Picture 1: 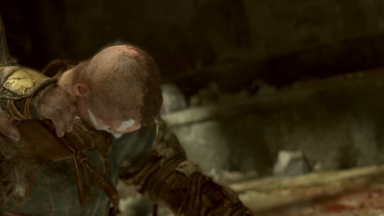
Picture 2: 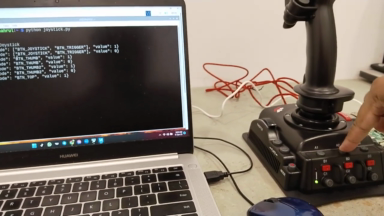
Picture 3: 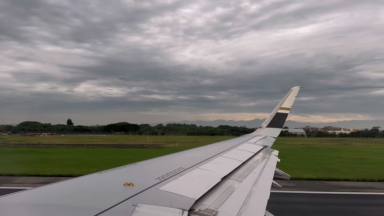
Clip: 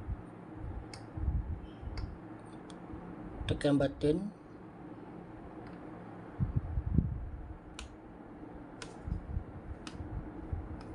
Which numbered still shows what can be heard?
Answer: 2